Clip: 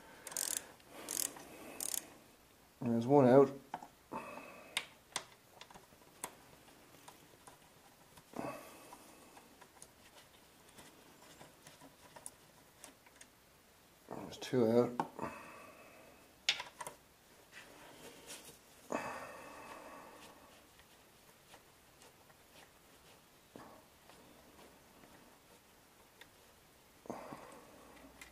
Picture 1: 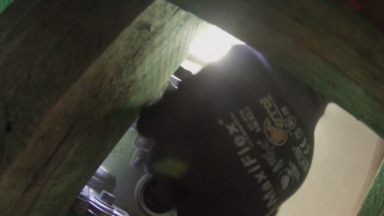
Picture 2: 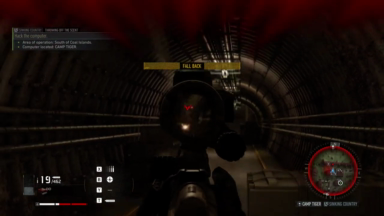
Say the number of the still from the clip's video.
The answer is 1